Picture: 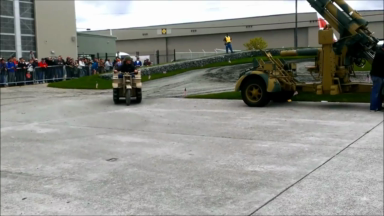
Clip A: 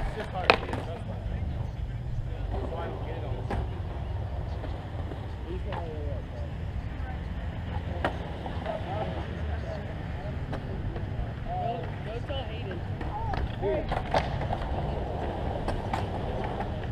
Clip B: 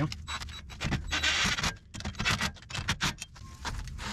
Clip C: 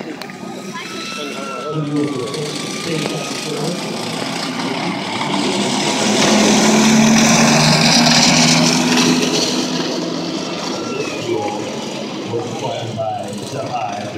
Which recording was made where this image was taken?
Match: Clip C